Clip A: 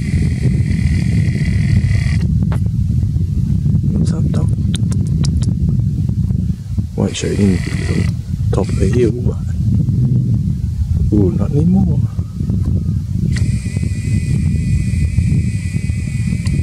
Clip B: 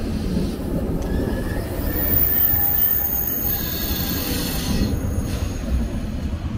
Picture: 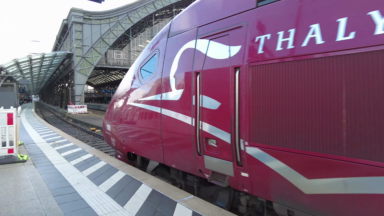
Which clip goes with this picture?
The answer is B